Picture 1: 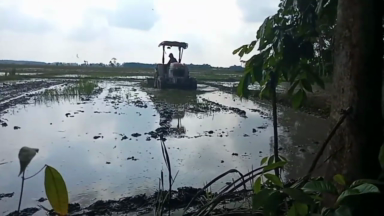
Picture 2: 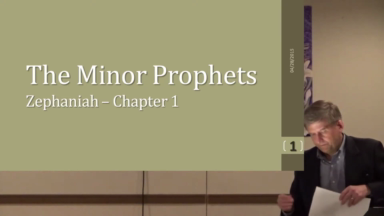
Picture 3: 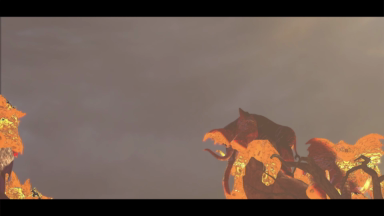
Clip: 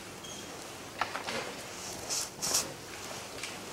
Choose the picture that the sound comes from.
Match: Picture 2